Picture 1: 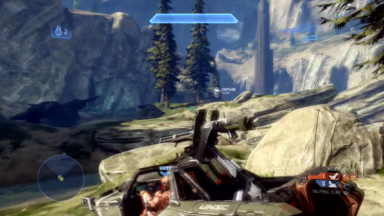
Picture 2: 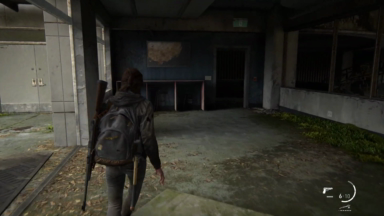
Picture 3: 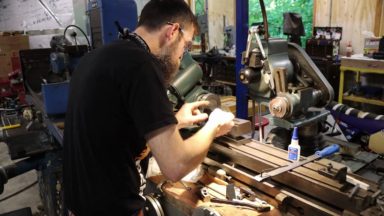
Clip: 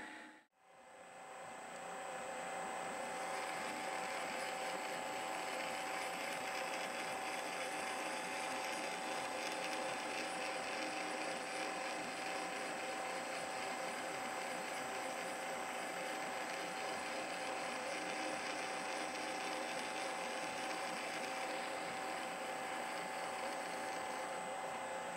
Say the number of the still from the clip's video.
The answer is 3